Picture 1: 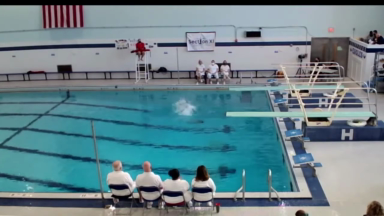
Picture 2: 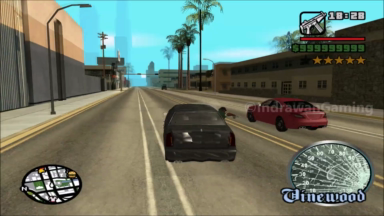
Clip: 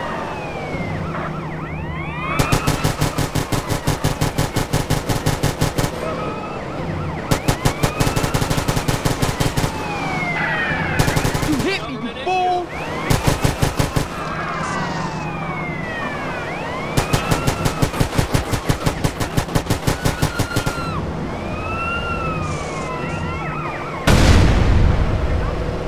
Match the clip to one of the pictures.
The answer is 2